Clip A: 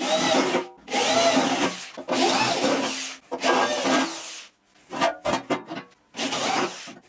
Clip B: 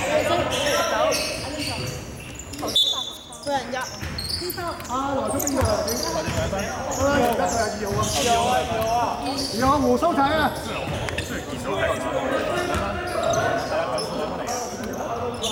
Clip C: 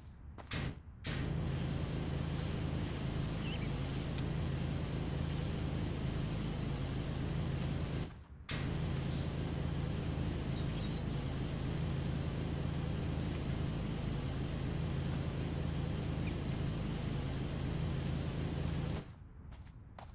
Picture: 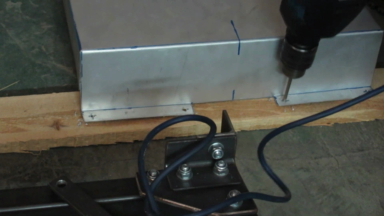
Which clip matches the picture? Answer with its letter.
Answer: A